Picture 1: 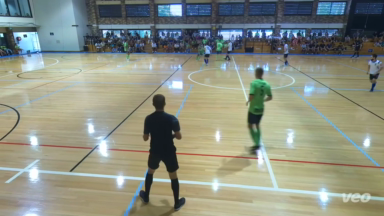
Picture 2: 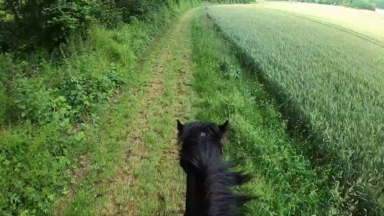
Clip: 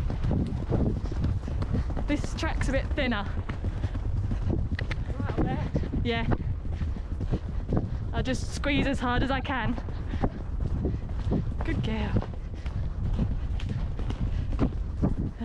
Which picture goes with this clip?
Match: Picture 2